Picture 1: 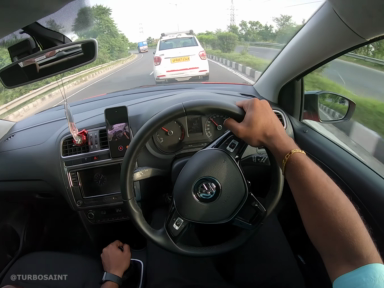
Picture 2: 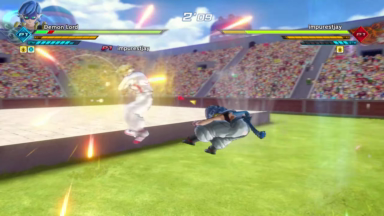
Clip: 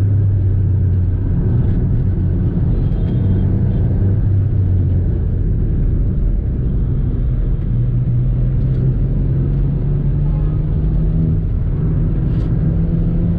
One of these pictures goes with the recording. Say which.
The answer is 1